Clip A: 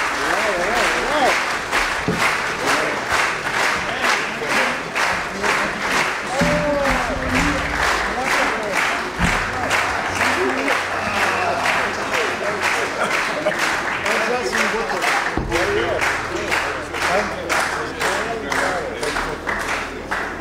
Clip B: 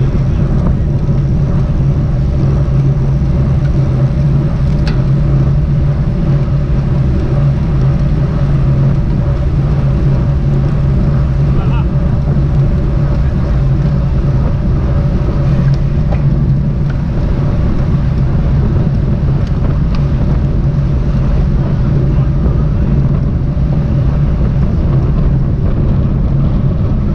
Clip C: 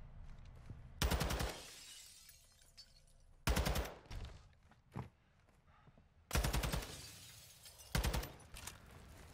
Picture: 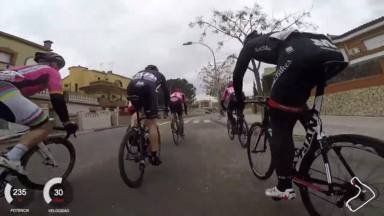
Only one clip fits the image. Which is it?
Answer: B